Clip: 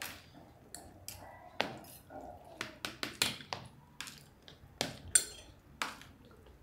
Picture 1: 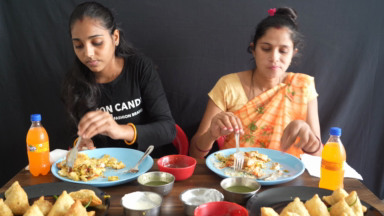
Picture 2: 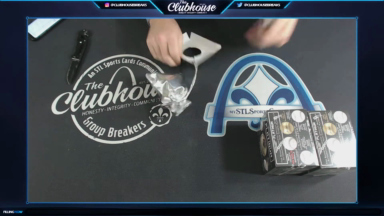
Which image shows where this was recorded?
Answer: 1